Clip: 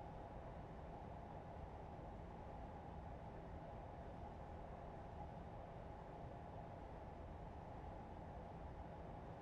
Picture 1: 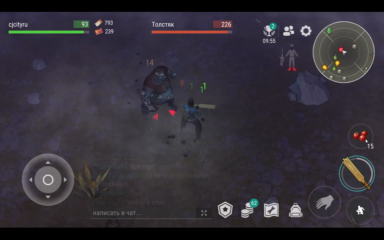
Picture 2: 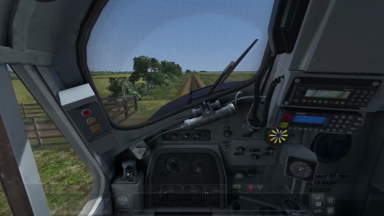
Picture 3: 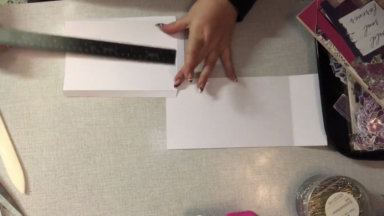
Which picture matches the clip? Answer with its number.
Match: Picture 2